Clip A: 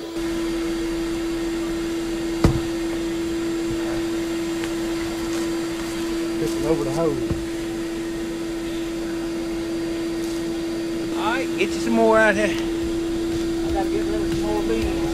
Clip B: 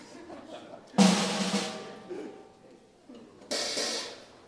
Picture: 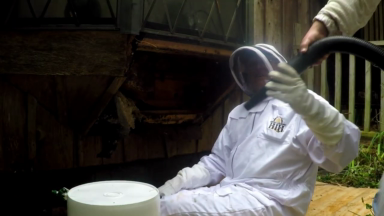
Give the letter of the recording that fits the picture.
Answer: A